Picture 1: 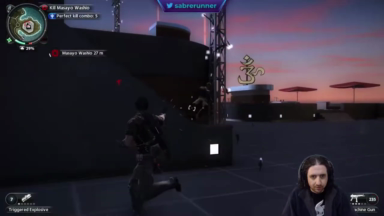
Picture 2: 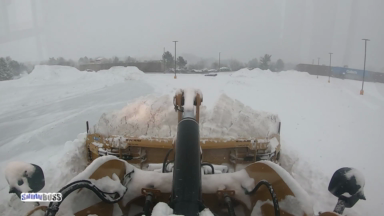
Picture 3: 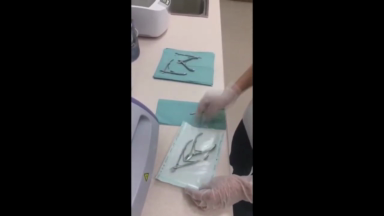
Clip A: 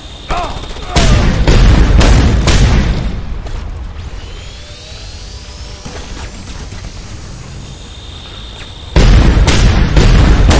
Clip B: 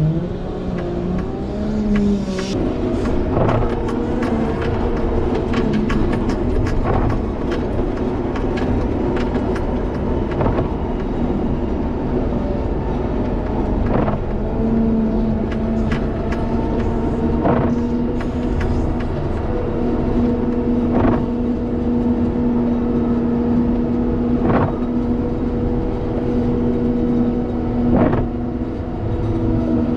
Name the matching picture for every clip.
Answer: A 1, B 2